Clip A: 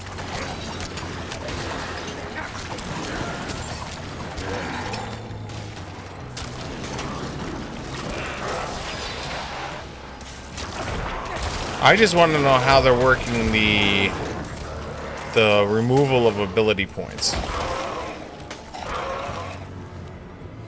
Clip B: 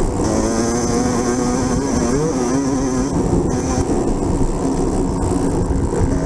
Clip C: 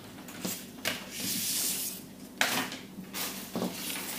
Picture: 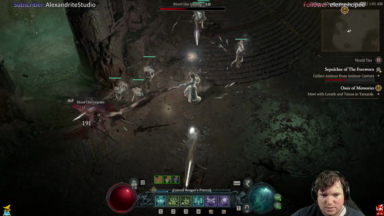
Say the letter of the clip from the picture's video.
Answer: A